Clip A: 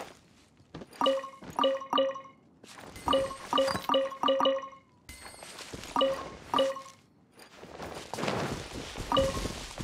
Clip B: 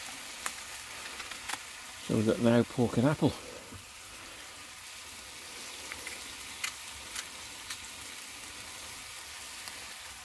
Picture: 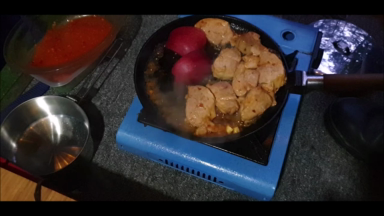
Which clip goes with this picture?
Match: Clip B